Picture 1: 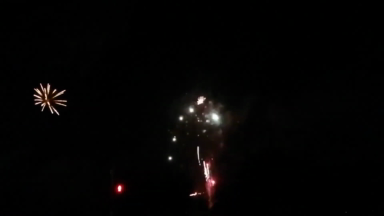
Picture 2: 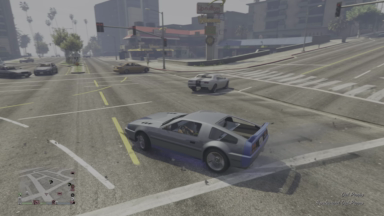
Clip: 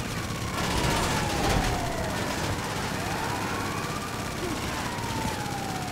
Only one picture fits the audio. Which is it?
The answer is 2